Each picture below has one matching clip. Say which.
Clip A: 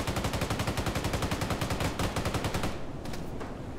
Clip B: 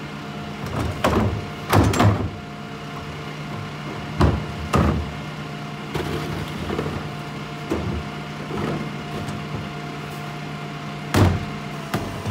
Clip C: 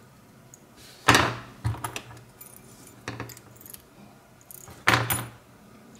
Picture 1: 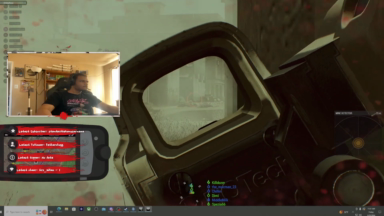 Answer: A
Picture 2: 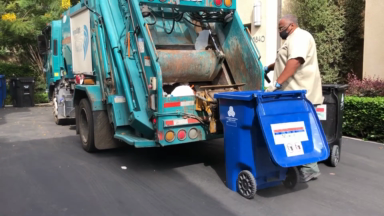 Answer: B